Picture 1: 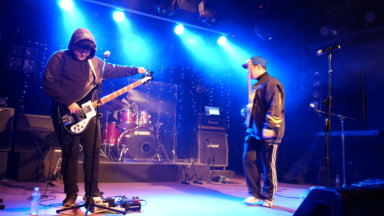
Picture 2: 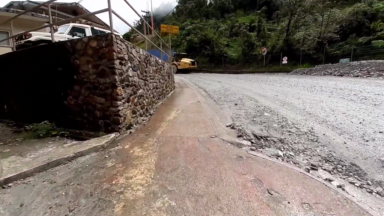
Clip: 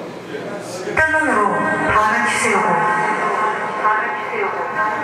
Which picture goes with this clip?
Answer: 1